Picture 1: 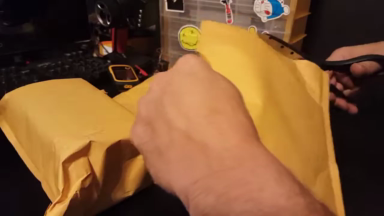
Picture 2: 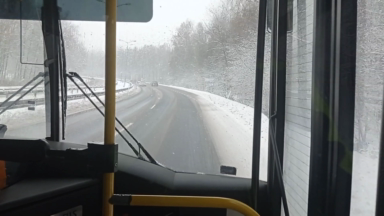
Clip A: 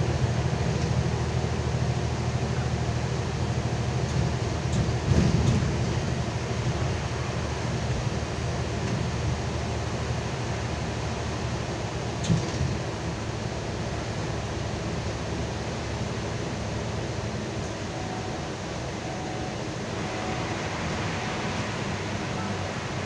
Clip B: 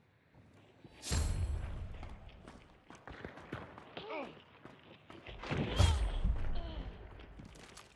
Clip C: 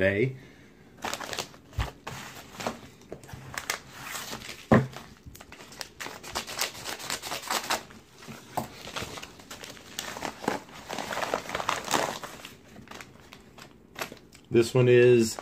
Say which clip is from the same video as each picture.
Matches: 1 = C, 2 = A